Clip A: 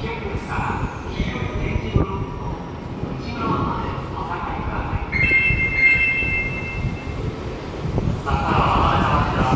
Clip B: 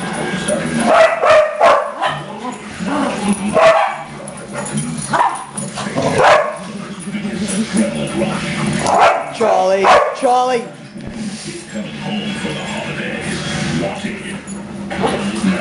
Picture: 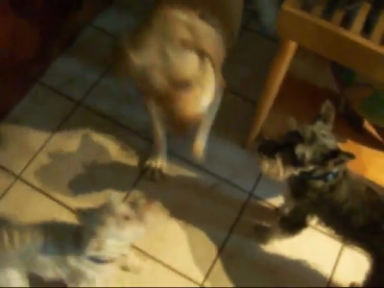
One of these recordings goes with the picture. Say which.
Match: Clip B